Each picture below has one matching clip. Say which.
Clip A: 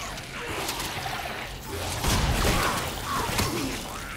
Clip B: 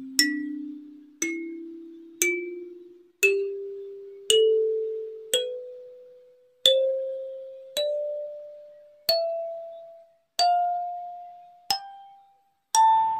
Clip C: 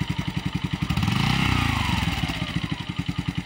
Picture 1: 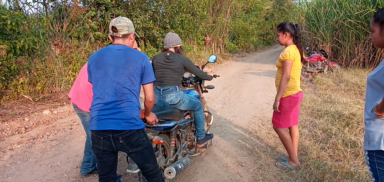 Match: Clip C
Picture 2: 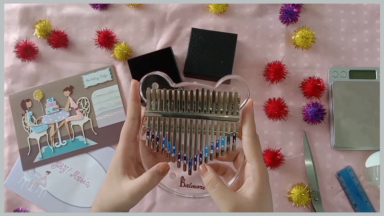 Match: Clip B